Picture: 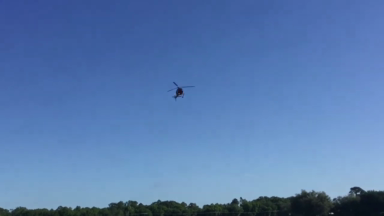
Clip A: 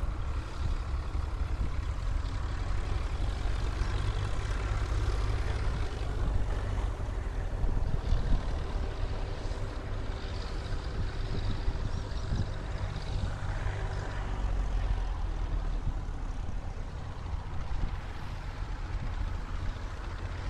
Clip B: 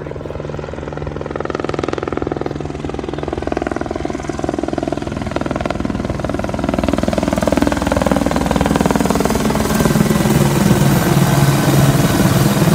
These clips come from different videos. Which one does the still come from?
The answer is B